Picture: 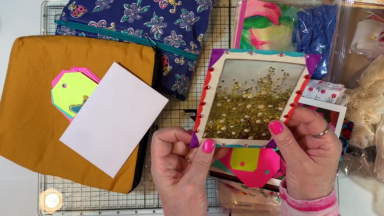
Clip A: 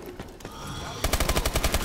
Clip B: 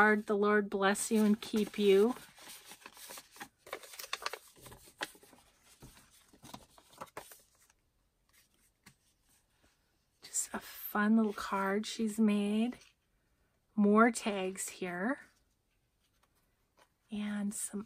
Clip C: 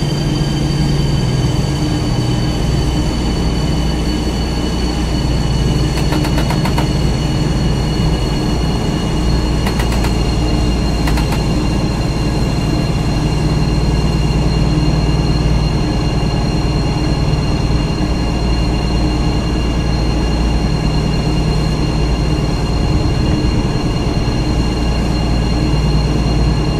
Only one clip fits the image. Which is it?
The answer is B